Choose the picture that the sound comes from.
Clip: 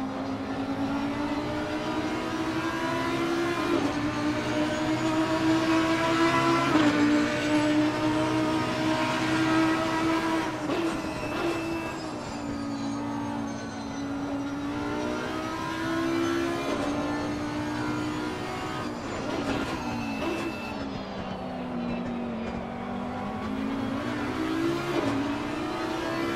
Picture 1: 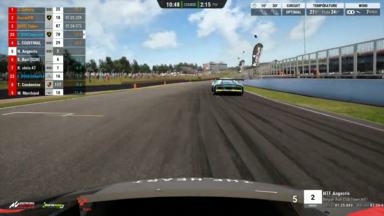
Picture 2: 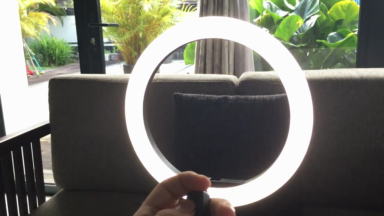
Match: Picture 1